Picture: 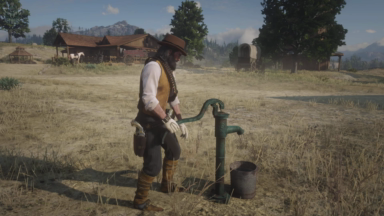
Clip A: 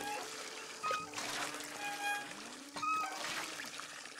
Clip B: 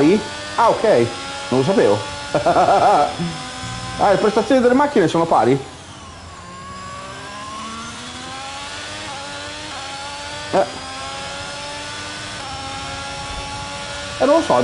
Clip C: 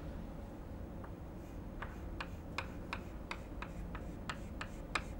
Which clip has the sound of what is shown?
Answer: A